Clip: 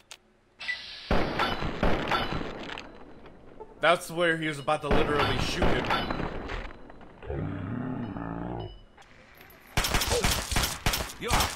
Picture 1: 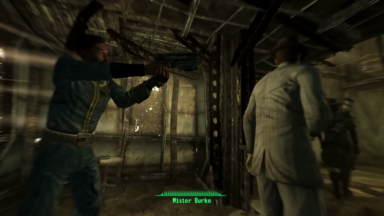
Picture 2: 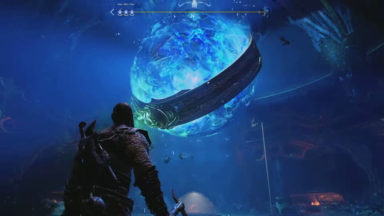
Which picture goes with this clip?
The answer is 1